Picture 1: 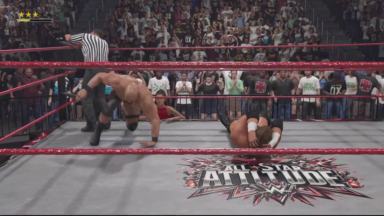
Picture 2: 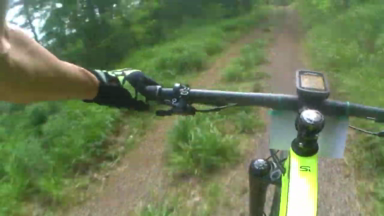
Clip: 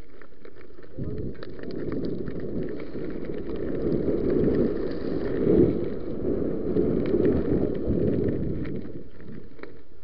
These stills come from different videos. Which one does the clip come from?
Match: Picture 2